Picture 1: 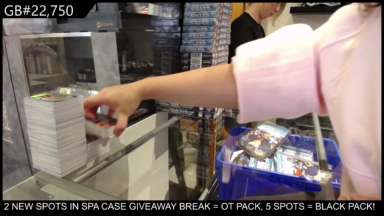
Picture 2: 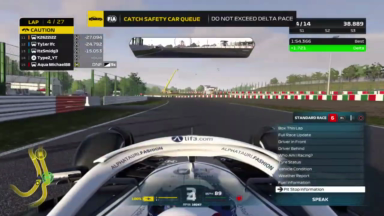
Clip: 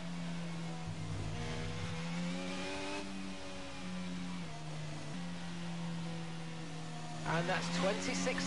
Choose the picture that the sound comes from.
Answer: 2